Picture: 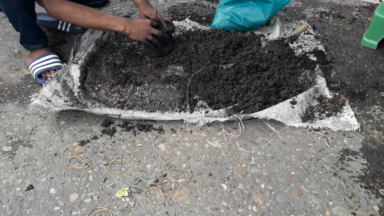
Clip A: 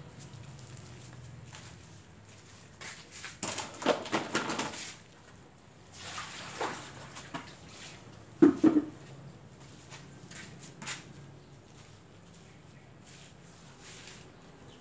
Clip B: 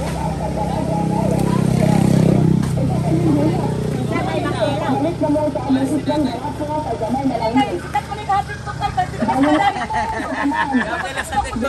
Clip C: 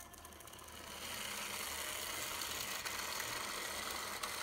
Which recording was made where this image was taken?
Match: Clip A